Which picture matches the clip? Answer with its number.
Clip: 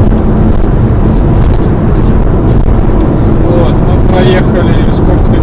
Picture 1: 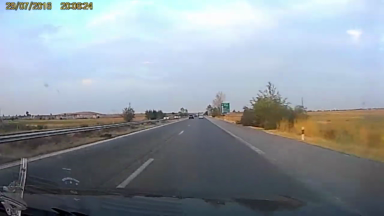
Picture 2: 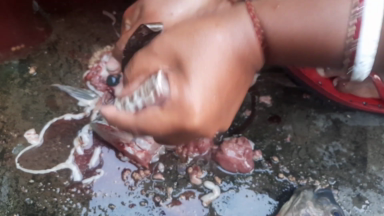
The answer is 1